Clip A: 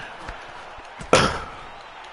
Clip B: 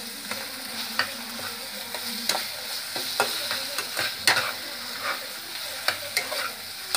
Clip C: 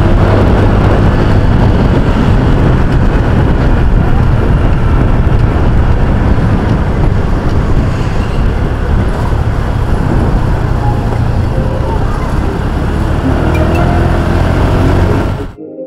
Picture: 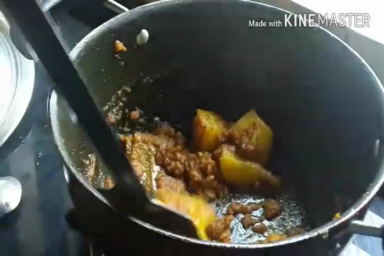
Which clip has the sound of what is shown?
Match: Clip B